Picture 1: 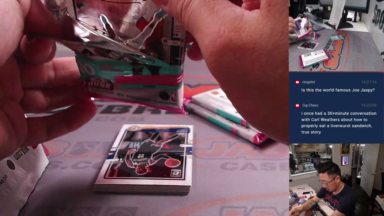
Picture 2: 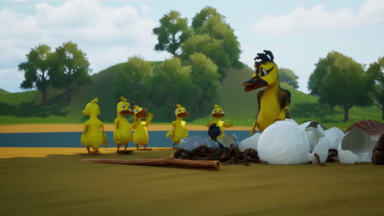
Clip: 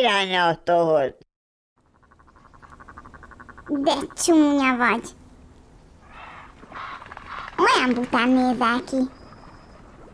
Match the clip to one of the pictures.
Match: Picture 2